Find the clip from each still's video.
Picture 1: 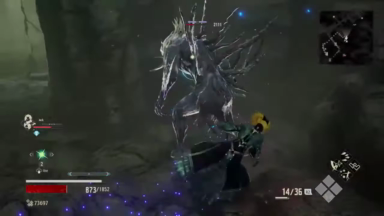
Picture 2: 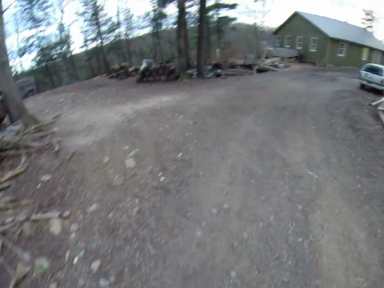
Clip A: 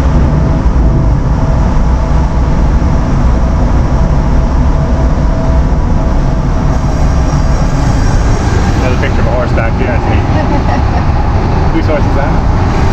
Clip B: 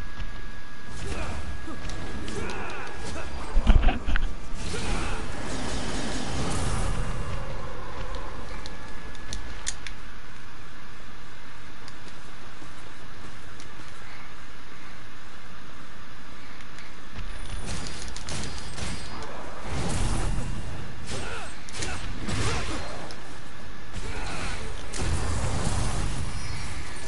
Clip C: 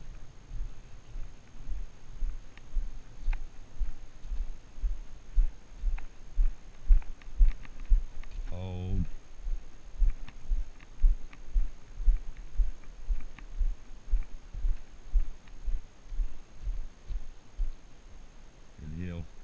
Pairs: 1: B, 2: C